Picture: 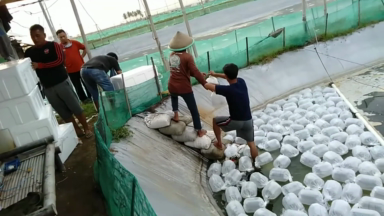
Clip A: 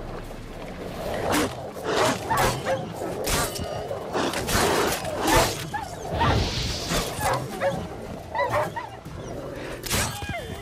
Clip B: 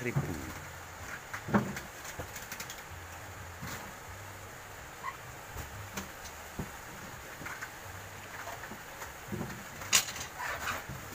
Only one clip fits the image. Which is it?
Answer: B